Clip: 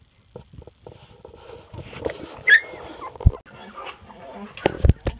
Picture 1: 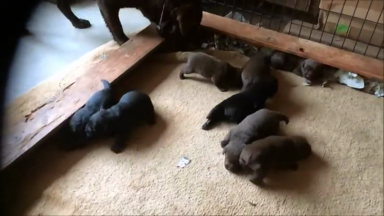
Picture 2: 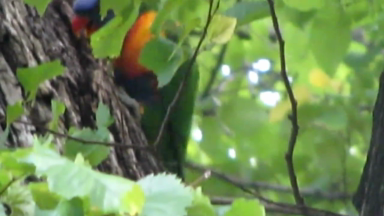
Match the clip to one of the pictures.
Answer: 1